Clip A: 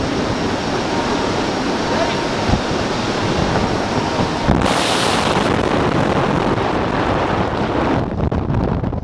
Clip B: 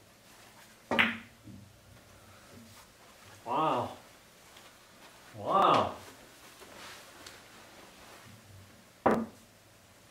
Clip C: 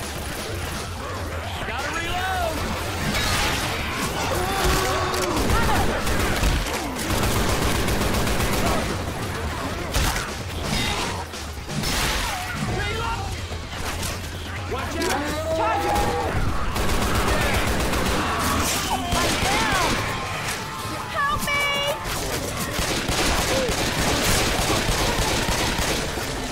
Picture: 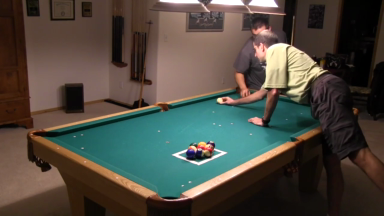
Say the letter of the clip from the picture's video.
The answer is B